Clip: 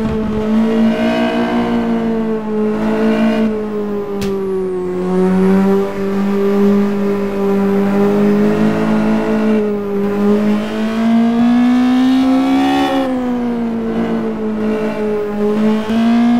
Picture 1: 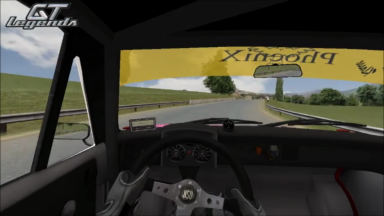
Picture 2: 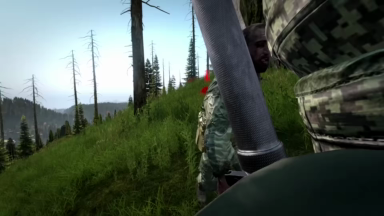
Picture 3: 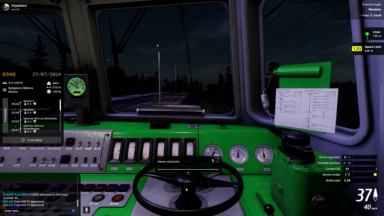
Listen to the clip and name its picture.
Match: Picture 1